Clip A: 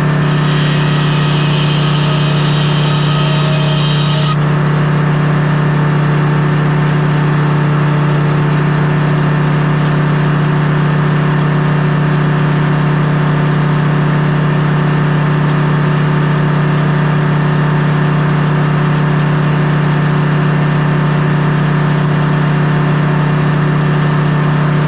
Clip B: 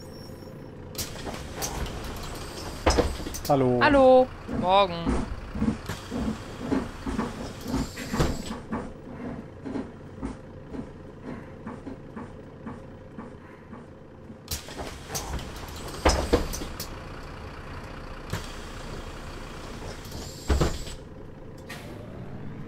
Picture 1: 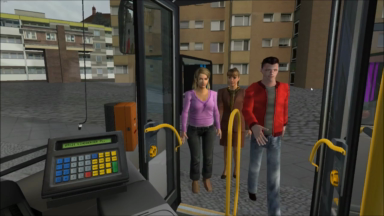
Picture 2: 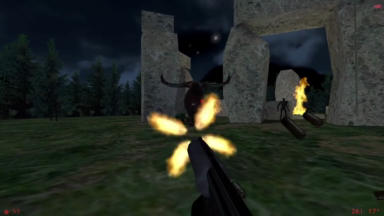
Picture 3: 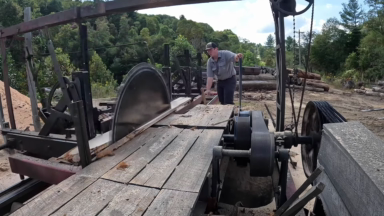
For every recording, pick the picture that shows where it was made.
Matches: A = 3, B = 1